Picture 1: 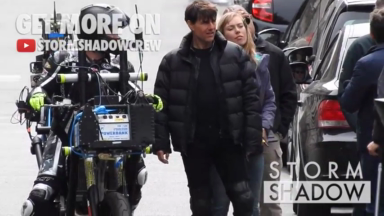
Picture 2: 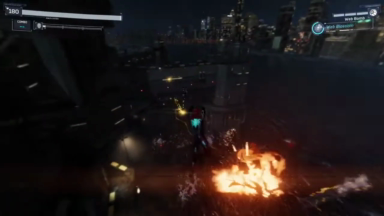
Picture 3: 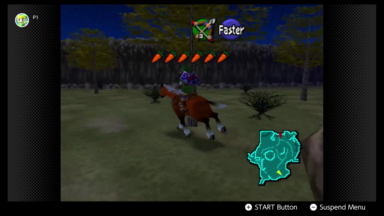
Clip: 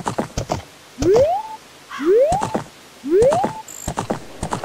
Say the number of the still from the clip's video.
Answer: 3